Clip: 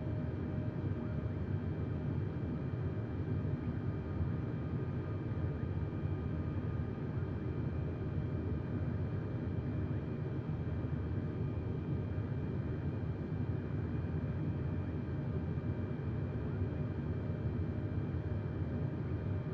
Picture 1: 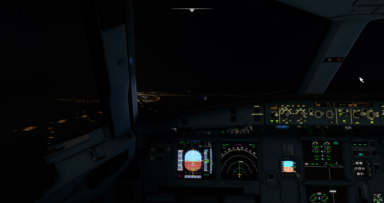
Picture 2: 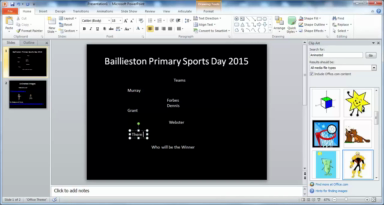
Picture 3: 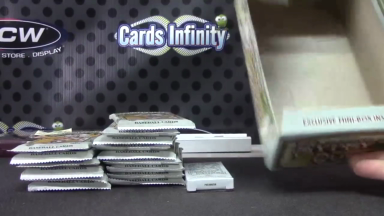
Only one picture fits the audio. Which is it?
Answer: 1